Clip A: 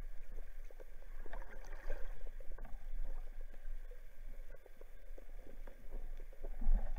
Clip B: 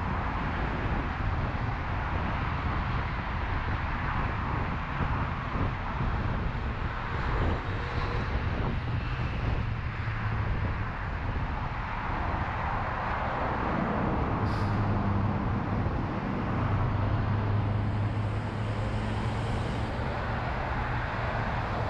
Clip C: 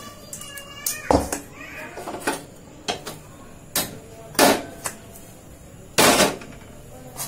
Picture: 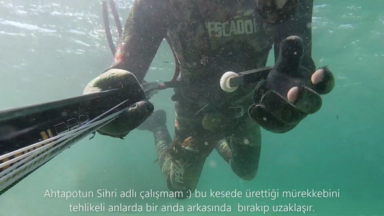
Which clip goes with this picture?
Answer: A